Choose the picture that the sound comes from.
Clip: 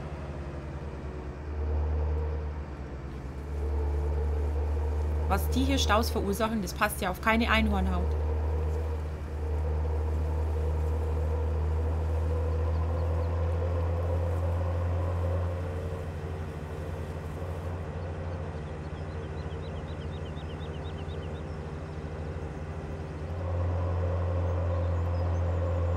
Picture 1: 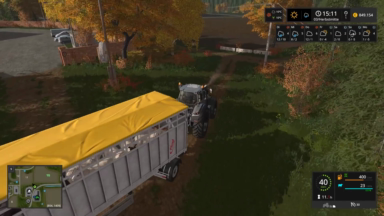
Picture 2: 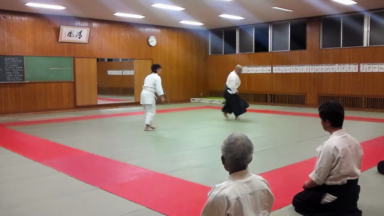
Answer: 1